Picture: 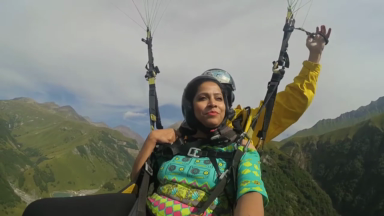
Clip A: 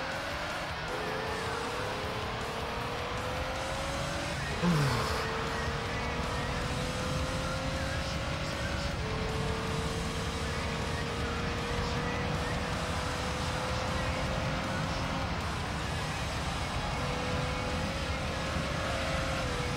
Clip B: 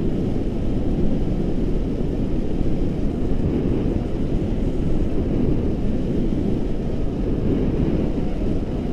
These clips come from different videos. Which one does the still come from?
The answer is B